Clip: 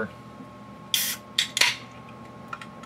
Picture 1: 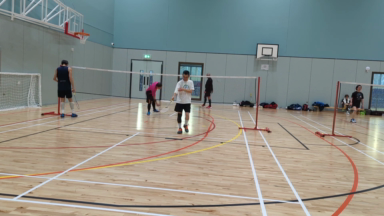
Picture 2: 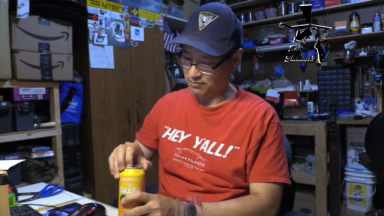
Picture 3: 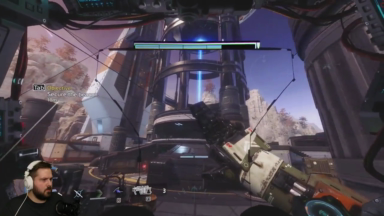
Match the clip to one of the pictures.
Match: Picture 2